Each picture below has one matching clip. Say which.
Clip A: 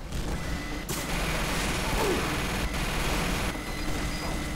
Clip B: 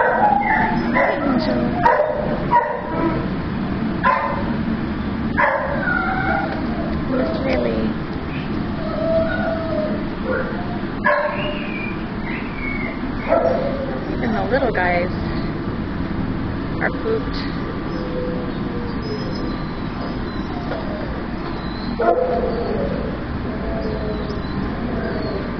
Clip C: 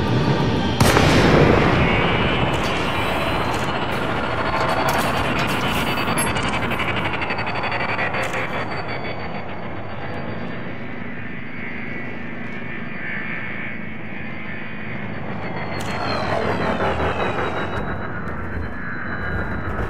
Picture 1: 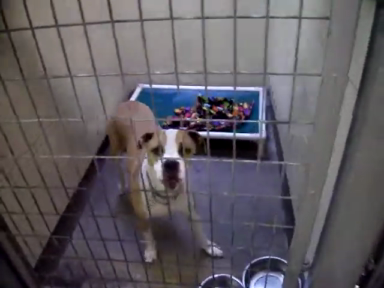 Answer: B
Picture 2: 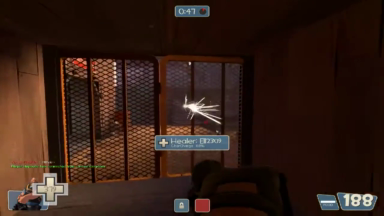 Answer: A